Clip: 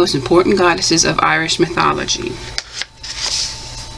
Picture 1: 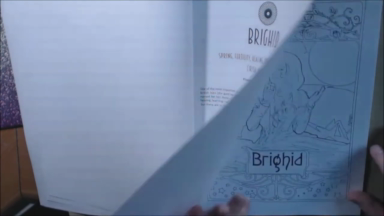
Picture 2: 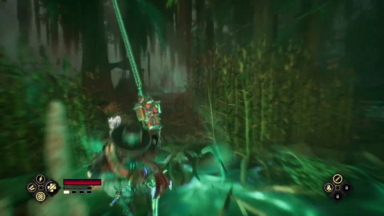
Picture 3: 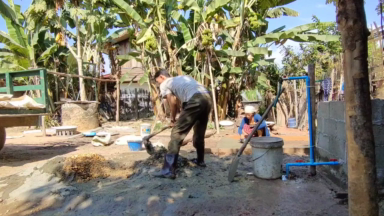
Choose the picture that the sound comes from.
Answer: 1